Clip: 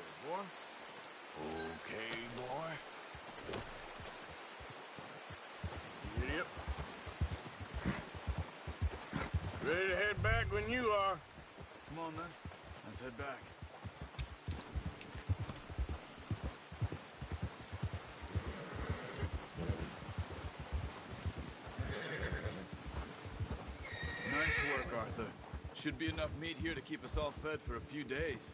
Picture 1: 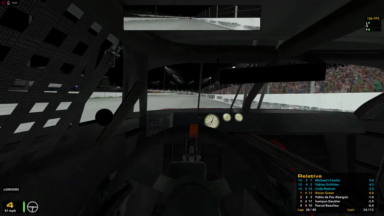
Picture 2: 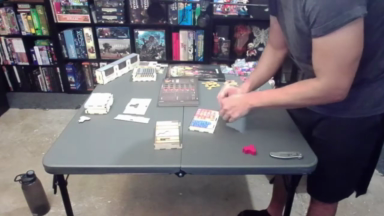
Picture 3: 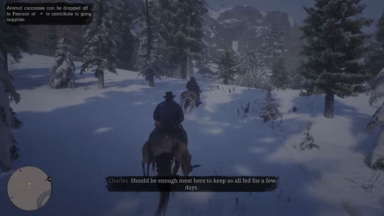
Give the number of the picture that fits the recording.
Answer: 3